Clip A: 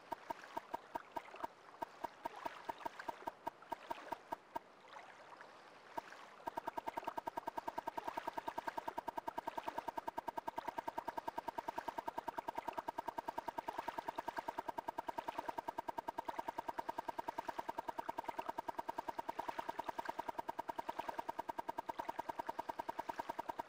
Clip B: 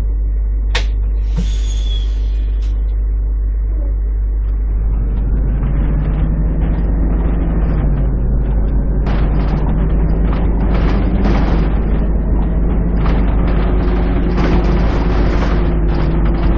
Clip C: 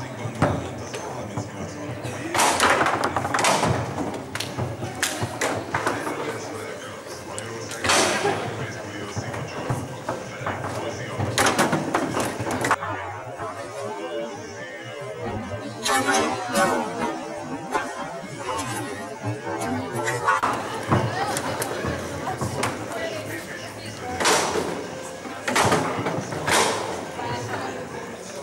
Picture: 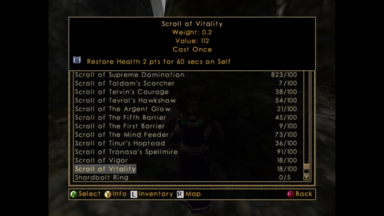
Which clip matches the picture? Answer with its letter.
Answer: A